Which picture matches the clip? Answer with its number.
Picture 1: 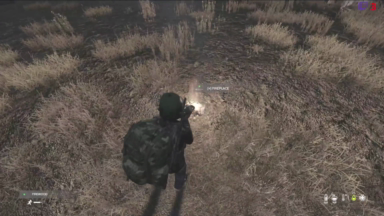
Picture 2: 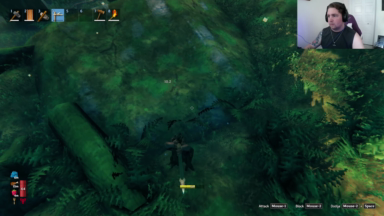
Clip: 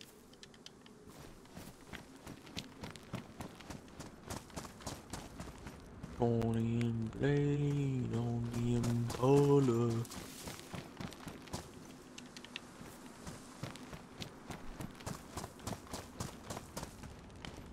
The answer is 1